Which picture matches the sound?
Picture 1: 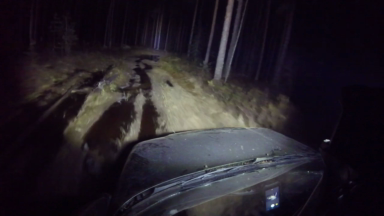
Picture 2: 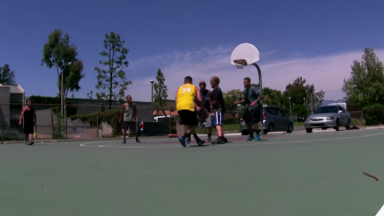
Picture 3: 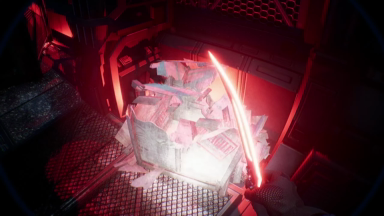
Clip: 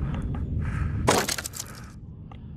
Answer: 3